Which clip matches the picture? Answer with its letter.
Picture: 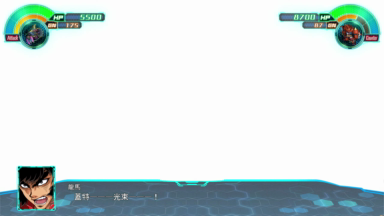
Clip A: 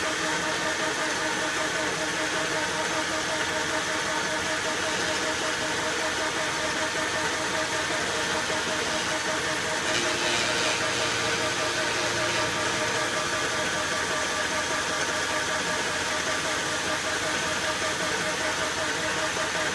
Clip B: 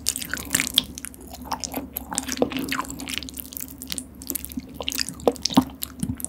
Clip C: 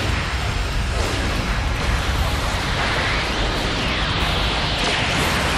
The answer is C